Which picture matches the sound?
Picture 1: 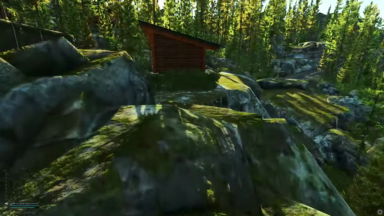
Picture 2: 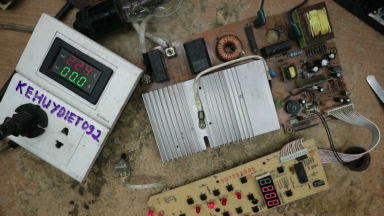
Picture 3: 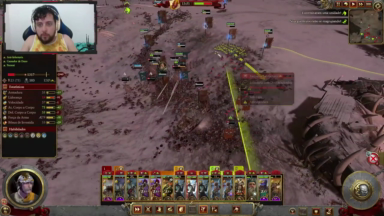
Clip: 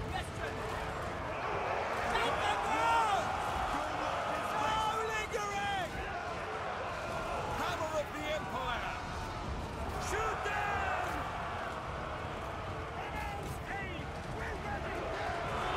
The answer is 3